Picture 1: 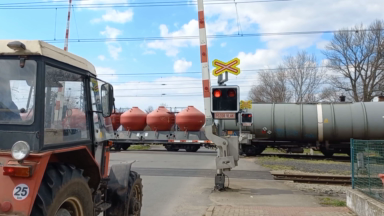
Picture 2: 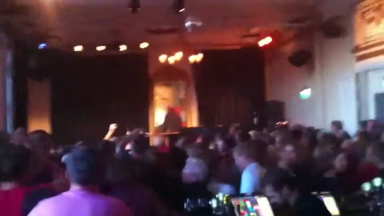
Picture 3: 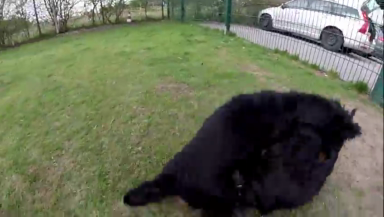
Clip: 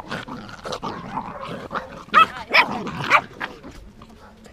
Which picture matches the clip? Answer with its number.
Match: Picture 3